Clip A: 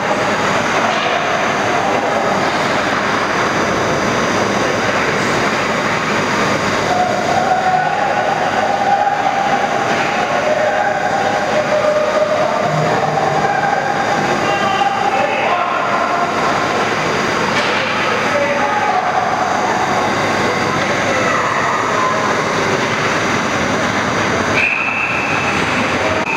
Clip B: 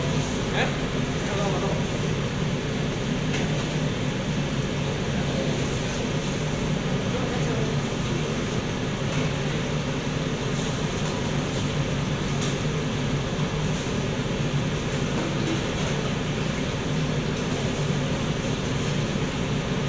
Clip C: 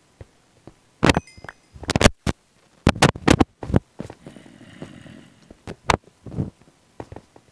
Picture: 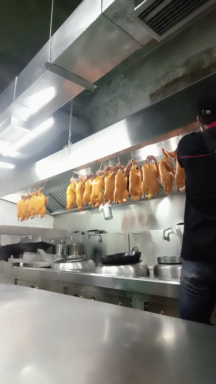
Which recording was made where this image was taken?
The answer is B